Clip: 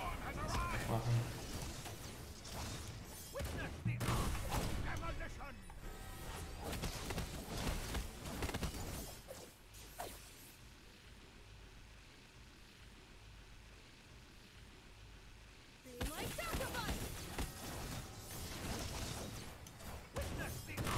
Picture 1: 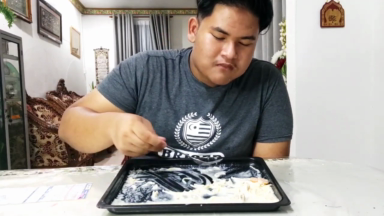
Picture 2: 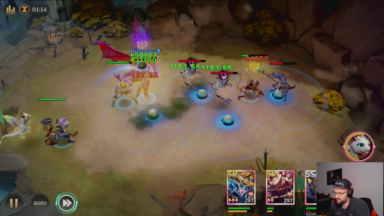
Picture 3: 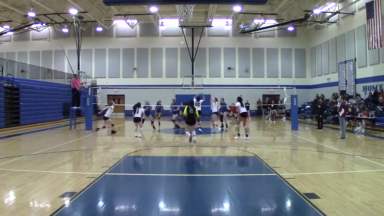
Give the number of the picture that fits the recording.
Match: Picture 2